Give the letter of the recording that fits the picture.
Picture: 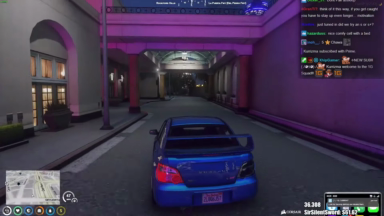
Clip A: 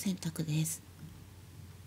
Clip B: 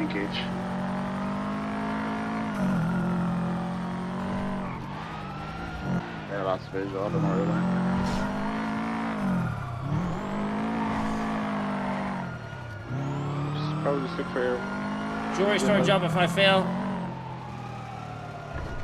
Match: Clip B